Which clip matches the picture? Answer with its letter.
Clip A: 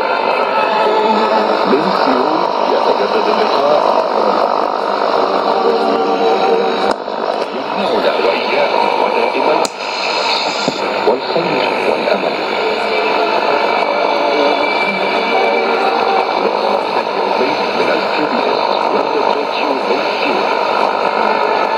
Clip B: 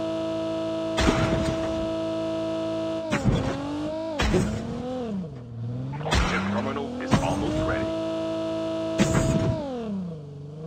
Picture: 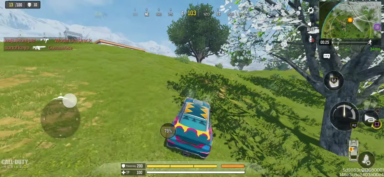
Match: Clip B